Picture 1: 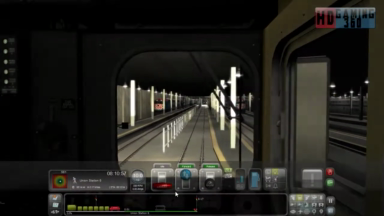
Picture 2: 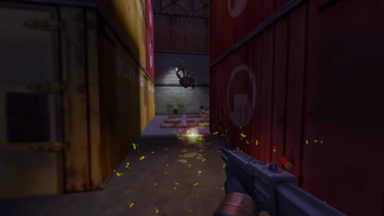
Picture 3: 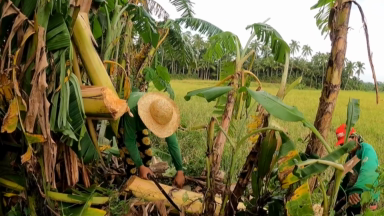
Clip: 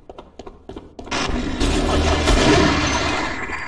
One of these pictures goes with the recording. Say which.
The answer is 2